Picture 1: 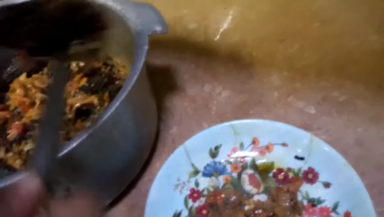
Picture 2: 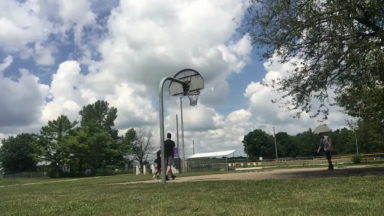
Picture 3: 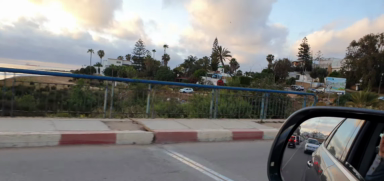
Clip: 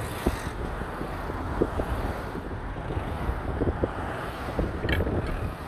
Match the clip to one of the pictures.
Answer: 3